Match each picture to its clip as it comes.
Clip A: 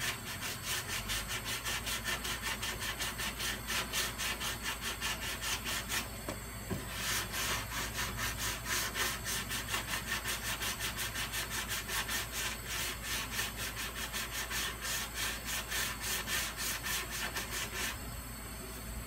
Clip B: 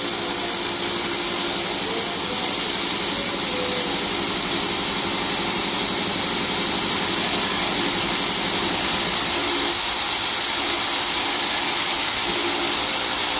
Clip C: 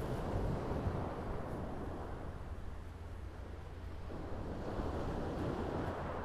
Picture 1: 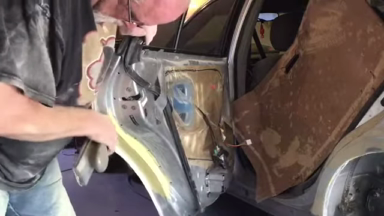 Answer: A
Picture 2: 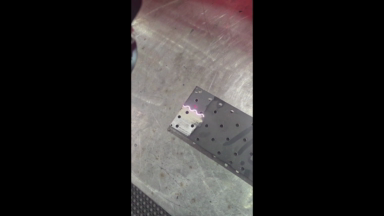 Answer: B